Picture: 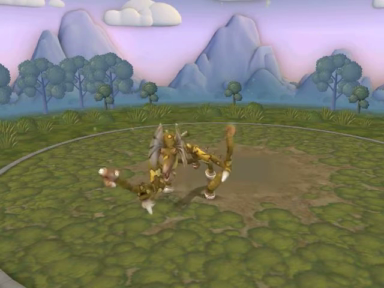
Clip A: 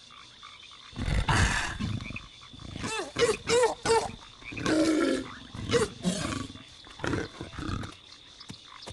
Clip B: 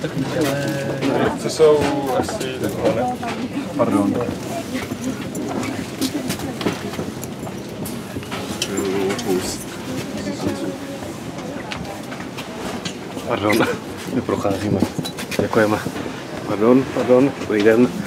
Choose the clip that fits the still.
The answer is A